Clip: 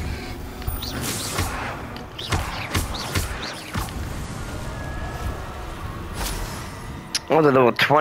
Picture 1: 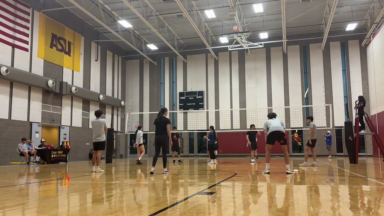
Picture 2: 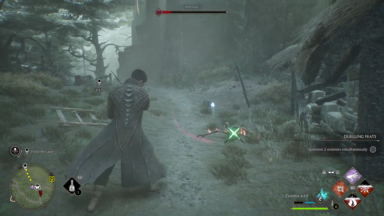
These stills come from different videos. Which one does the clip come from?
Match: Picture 2